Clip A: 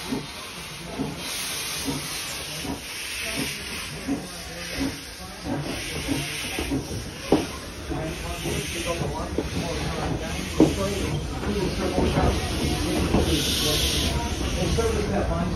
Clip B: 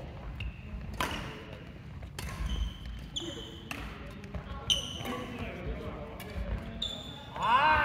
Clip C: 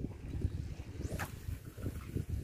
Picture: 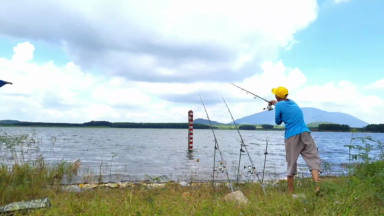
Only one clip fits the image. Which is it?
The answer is C